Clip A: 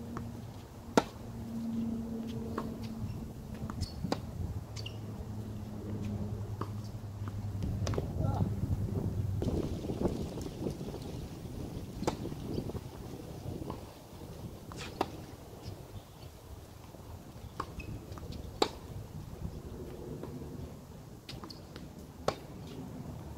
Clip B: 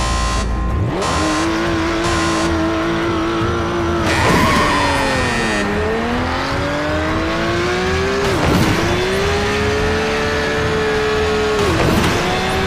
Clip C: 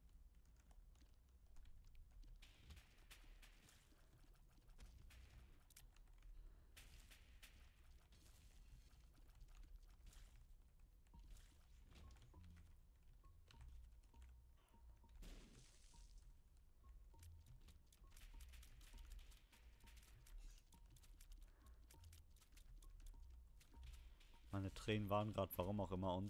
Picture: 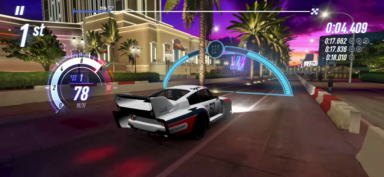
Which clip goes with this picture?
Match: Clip B